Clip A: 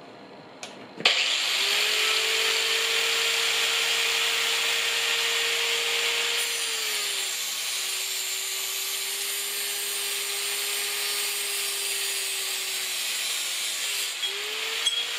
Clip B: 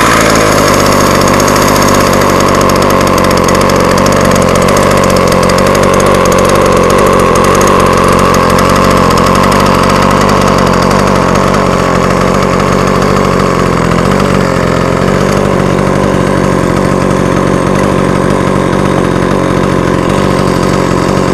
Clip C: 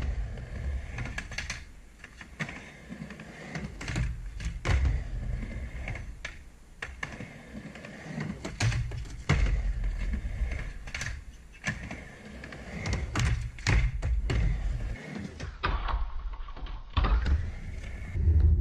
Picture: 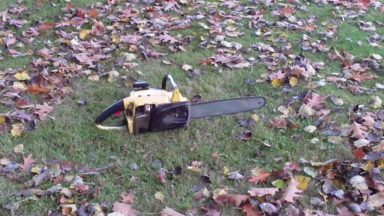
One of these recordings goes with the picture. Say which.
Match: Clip B